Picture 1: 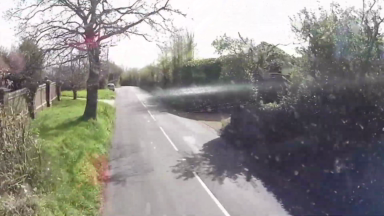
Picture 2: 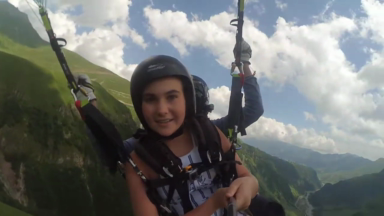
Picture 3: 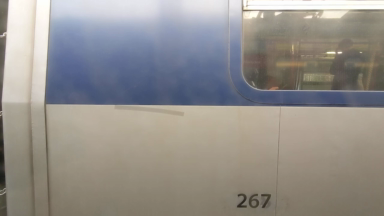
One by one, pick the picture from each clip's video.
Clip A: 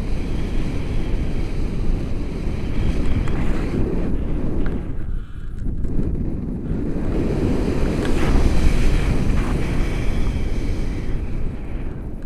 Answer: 2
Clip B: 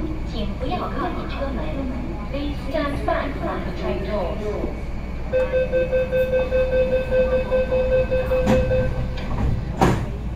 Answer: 3